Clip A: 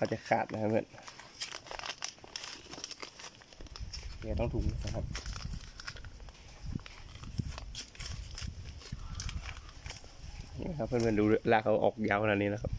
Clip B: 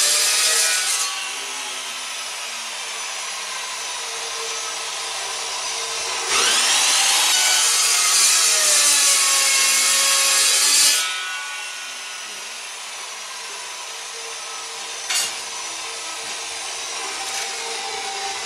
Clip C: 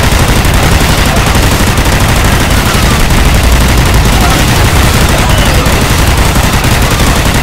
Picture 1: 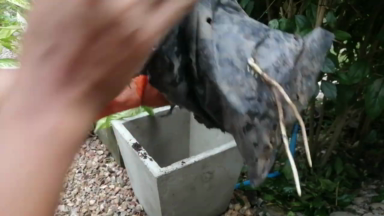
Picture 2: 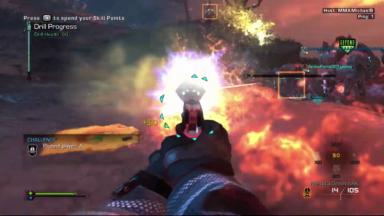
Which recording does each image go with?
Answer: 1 A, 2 C